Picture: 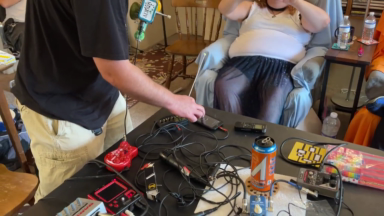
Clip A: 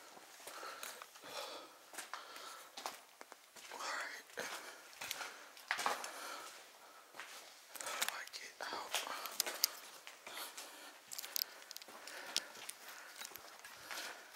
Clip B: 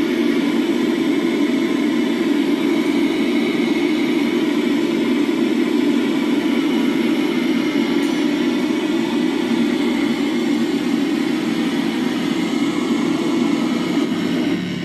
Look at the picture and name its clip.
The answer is B